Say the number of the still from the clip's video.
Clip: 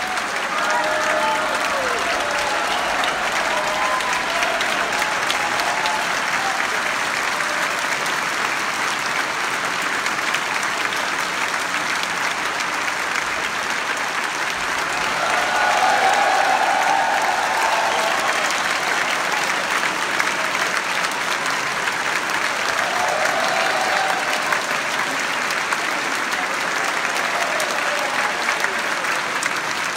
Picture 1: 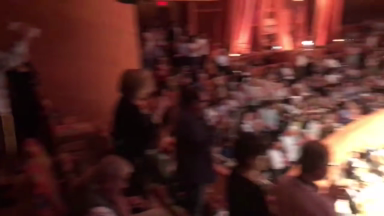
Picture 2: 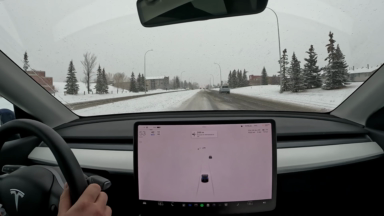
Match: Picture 1